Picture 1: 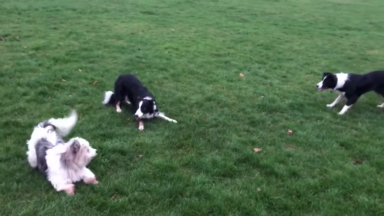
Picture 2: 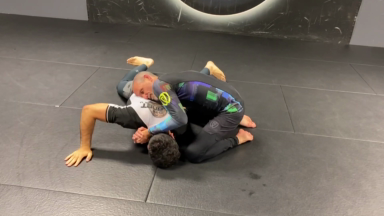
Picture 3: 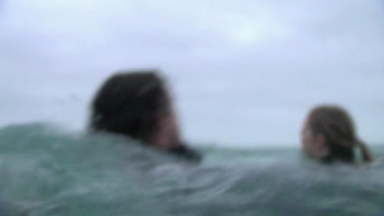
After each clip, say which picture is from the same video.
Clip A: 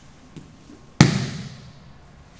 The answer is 2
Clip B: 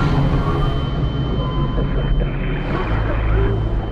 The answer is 3